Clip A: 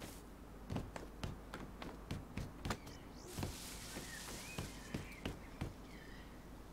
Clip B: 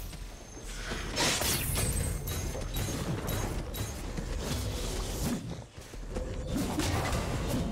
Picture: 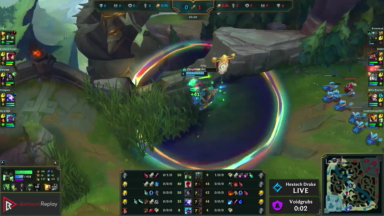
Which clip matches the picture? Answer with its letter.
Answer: B